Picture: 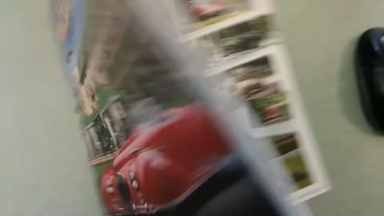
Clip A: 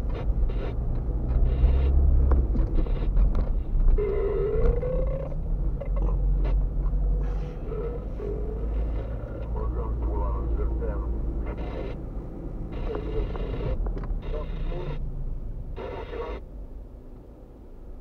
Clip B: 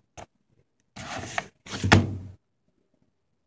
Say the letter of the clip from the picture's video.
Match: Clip B